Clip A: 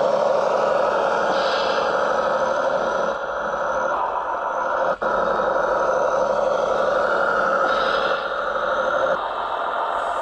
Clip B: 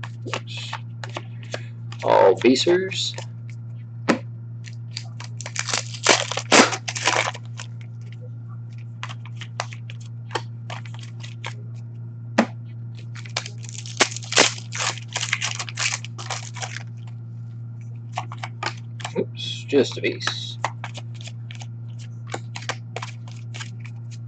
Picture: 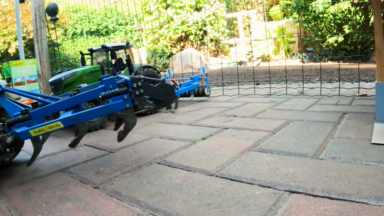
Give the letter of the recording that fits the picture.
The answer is A